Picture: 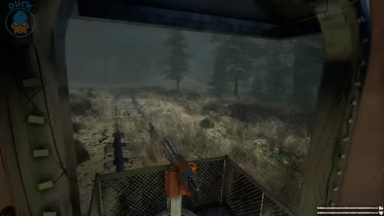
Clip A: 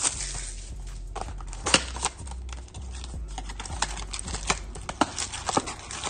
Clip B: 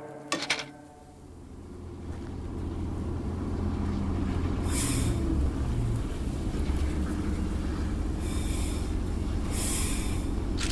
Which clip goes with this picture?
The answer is B